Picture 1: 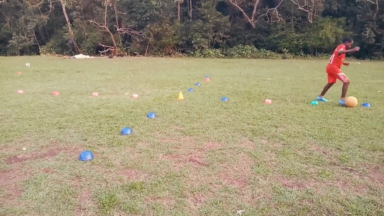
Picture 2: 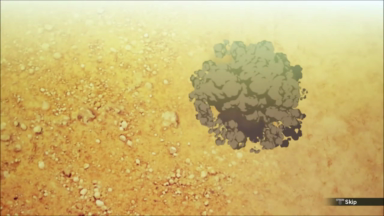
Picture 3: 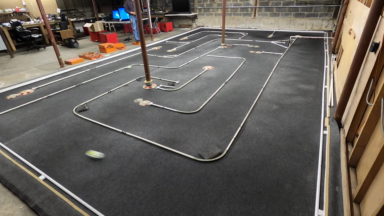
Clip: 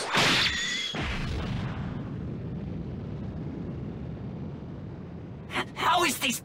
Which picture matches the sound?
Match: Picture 2